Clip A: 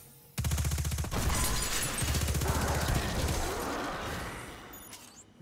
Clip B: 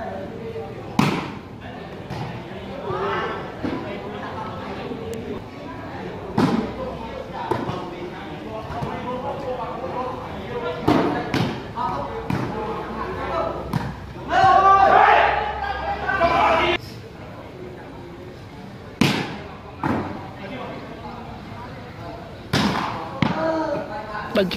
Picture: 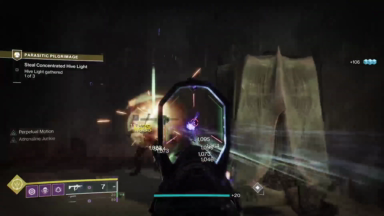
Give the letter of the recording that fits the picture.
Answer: A